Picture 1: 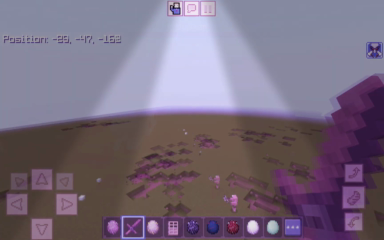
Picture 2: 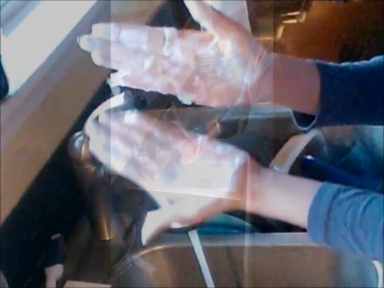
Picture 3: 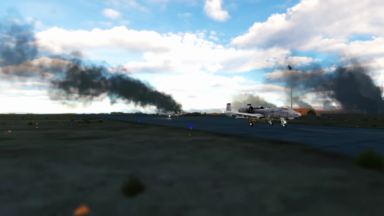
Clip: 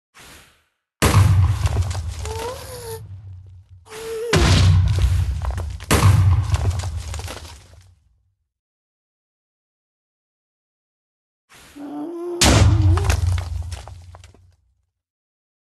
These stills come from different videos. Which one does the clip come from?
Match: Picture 1